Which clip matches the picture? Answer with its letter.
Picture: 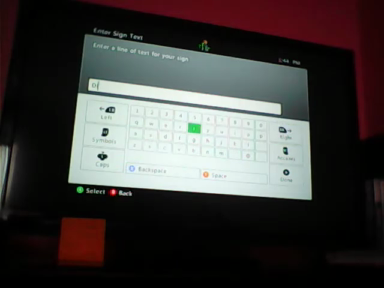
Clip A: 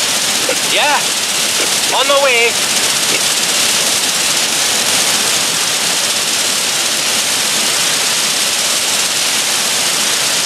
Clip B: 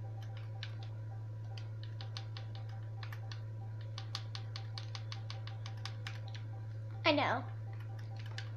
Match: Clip B